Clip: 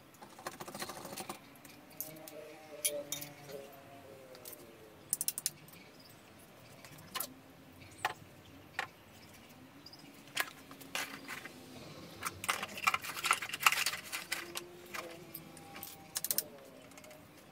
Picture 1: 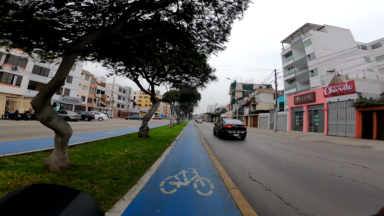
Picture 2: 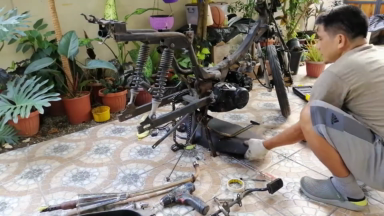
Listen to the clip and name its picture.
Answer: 2